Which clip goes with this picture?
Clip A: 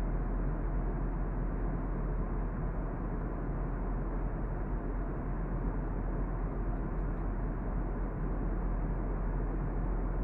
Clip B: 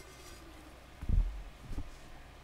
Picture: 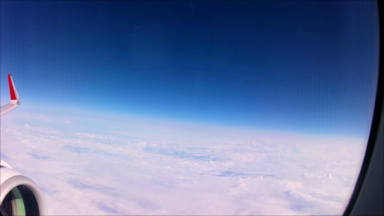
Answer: A